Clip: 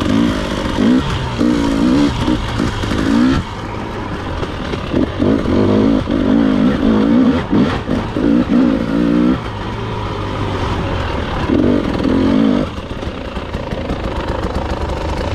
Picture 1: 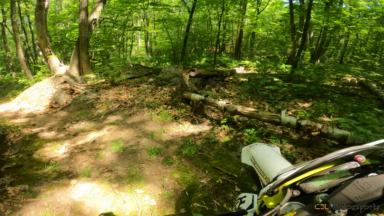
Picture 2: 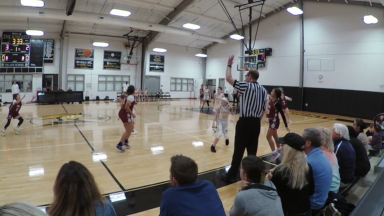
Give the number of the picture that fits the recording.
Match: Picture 1